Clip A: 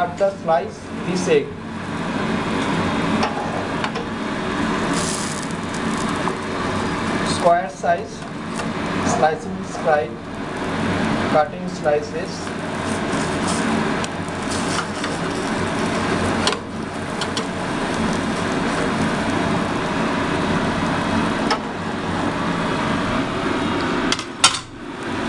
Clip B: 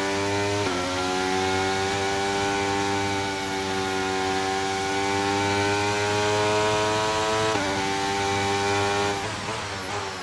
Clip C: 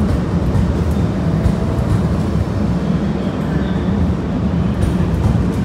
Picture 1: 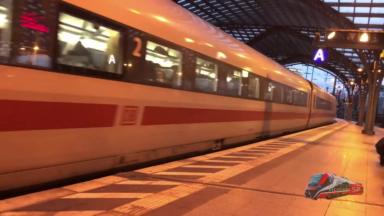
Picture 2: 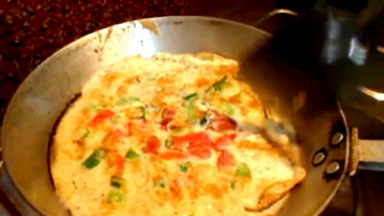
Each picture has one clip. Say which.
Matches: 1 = C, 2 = A